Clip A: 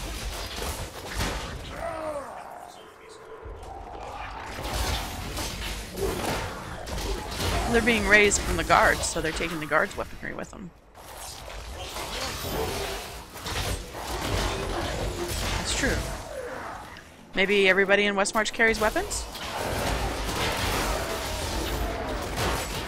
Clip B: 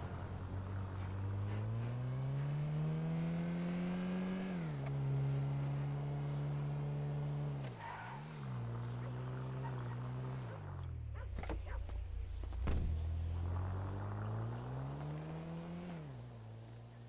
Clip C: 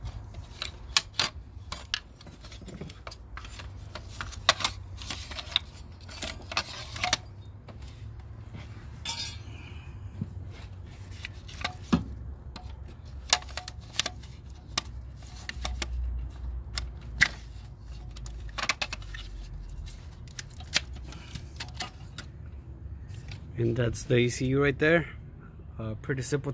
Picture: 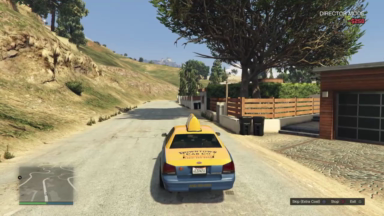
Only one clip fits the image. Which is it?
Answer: B